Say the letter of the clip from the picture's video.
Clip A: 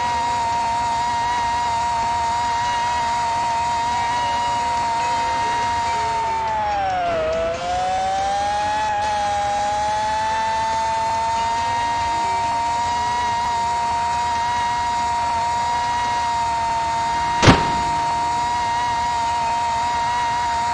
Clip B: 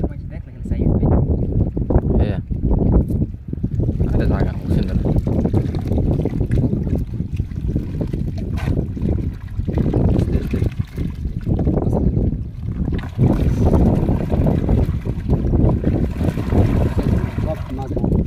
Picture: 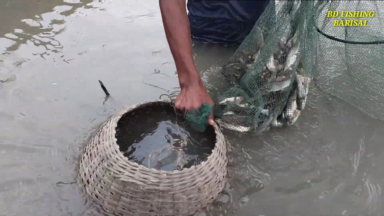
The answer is B